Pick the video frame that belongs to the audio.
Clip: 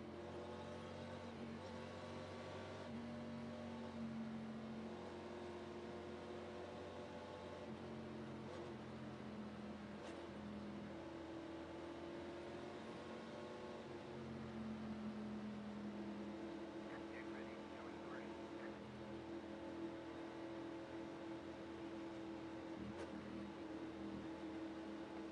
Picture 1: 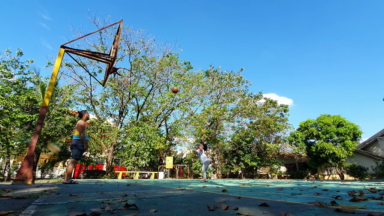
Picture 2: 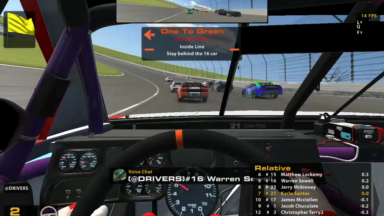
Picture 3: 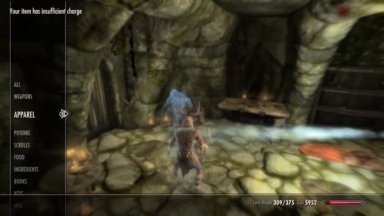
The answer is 2